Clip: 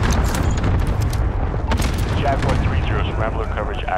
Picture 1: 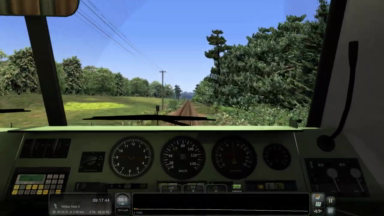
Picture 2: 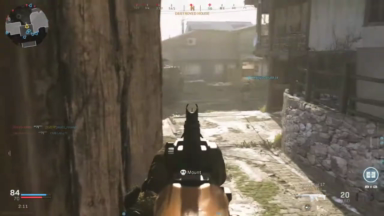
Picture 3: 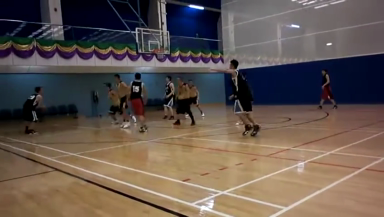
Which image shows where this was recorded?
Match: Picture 2